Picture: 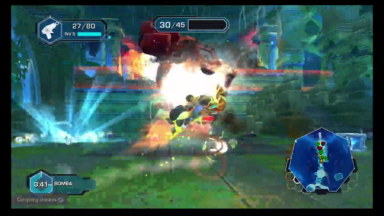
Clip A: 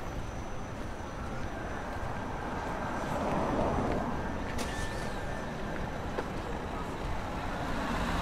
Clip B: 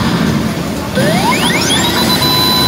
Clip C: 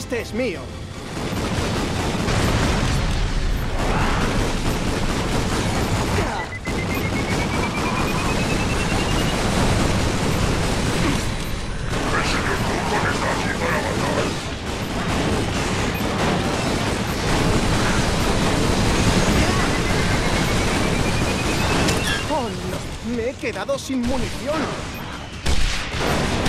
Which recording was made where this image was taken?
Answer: C